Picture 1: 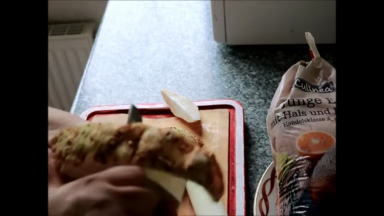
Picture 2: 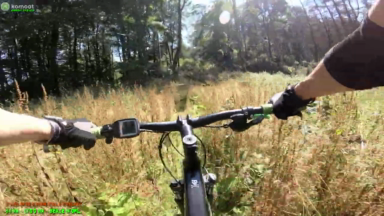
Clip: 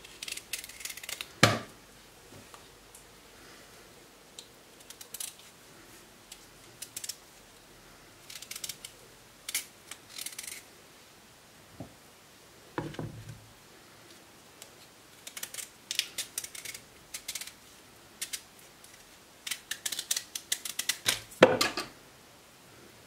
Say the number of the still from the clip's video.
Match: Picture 1